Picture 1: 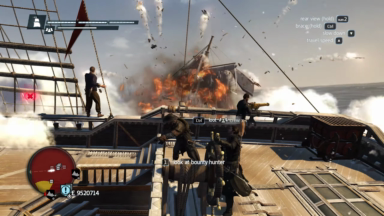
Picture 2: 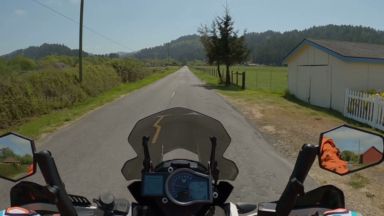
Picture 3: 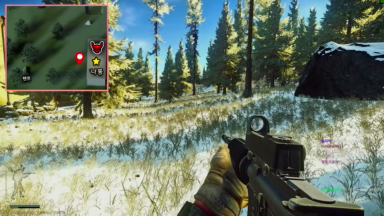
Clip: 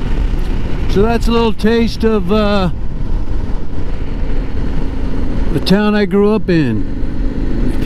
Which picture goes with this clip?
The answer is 2